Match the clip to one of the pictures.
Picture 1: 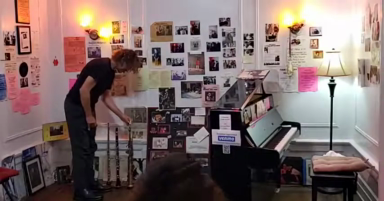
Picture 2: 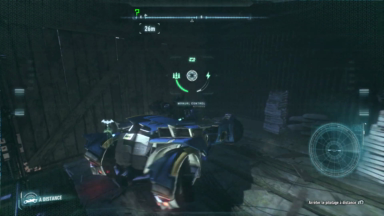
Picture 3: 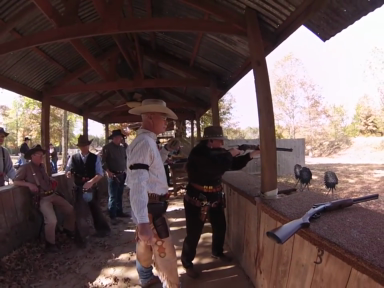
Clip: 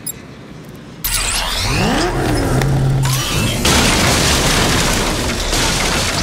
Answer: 2